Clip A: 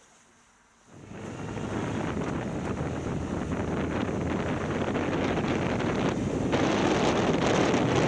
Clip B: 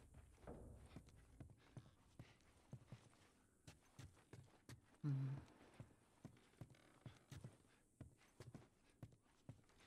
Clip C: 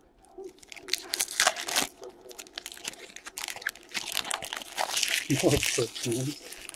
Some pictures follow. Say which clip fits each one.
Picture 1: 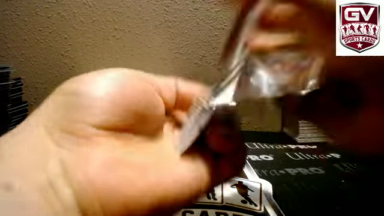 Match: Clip C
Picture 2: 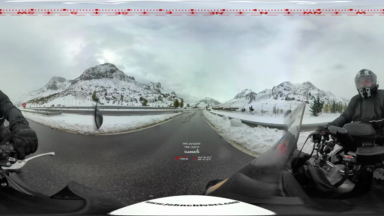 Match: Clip A